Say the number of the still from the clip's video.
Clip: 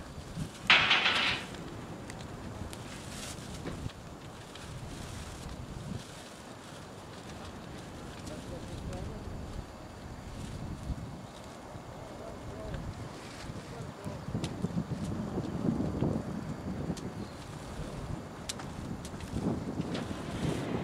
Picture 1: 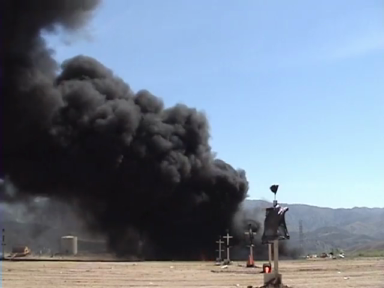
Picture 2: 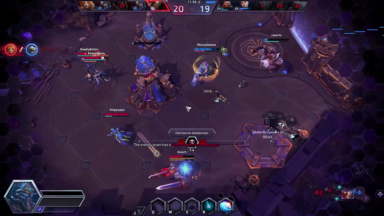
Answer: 1